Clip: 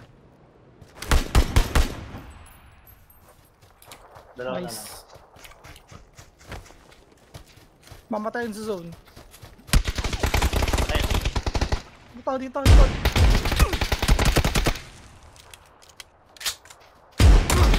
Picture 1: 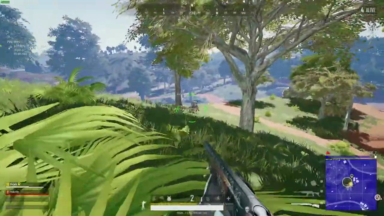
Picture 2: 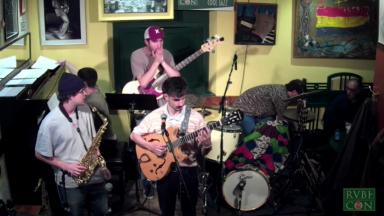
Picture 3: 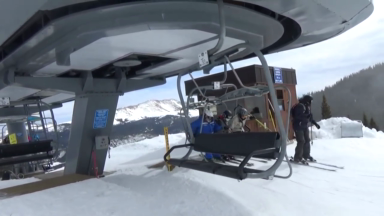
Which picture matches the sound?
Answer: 1